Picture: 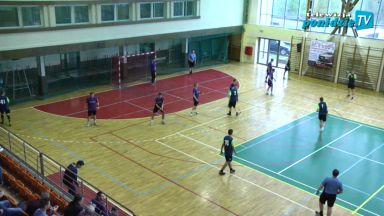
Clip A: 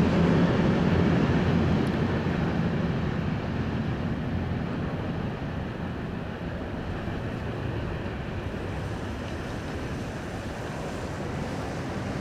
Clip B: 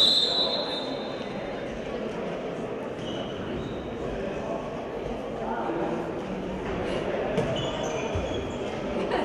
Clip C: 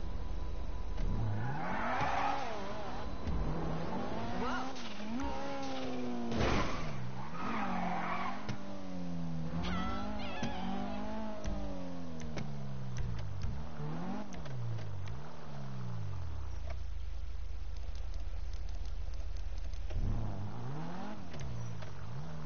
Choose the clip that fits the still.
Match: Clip B